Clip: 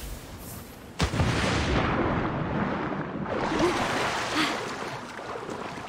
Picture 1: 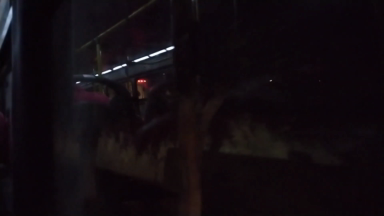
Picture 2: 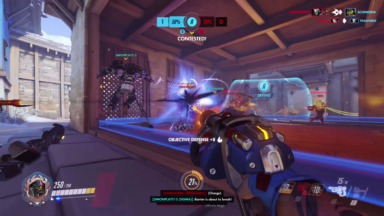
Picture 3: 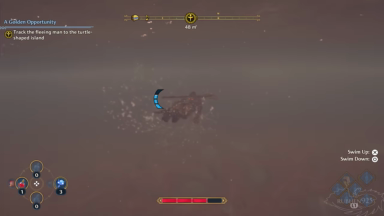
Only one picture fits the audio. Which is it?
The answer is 3